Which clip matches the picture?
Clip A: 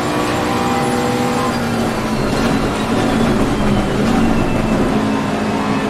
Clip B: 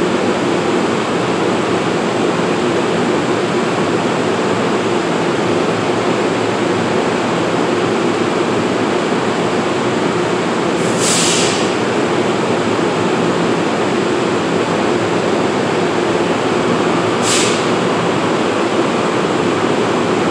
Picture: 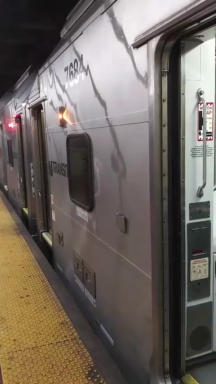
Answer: B